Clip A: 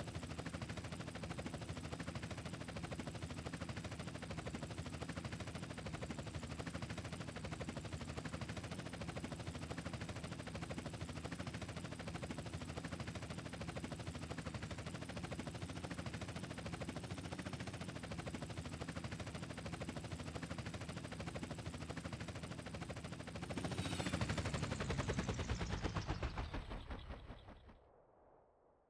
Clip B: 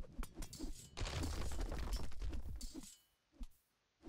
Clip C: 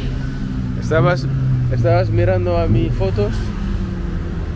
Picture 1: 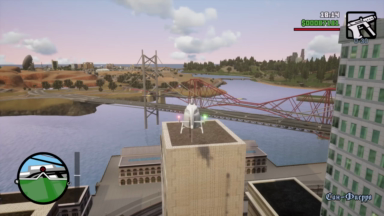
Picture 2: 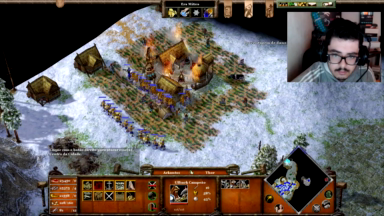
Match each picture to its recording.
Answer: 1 A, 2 B